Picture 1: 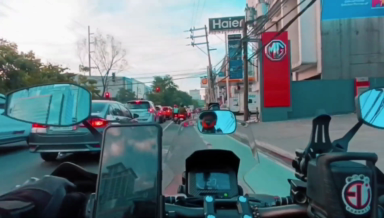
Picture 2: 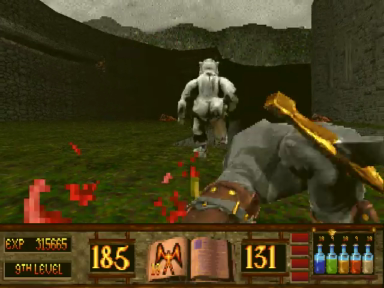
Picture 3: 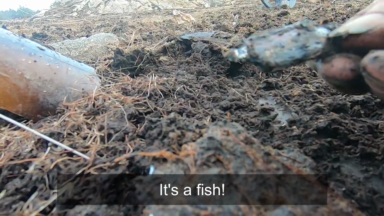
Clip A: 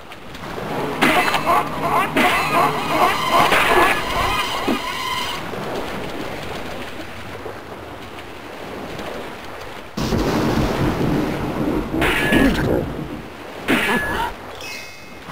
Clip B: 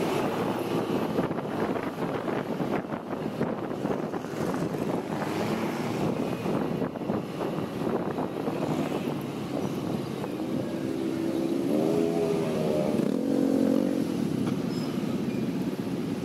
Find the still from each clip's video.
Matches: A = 2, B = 1